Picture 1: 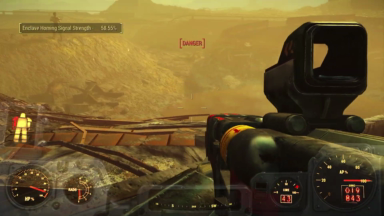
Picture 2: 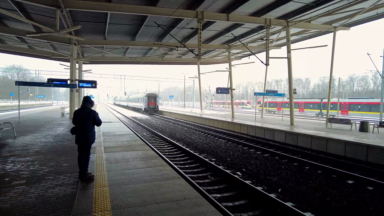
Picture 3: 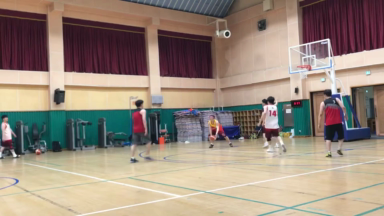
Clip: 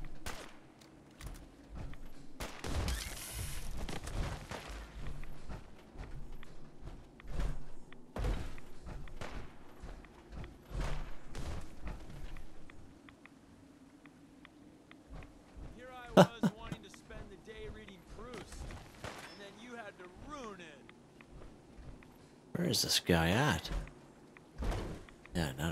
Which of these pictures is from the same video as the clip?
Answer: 1